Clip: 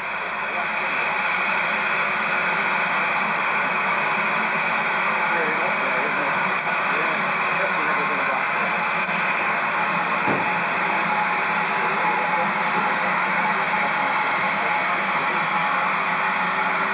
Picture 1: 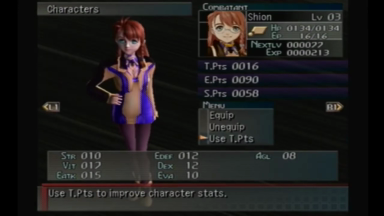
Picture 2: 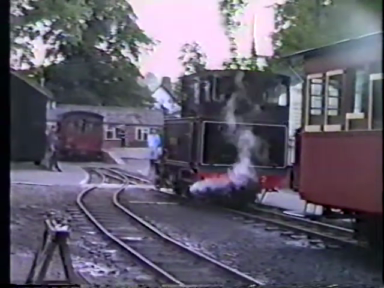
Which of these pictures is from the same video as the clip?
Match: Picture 2